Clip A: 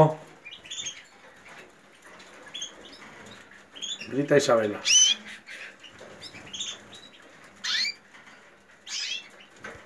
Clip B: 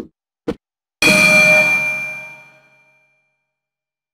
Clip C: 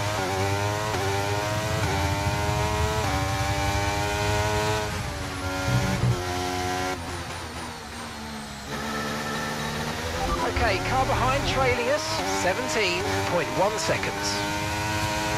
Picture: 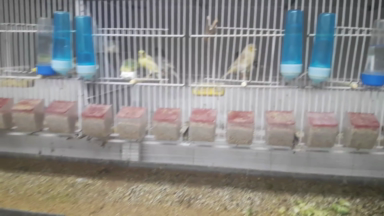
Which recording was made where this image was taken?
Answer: A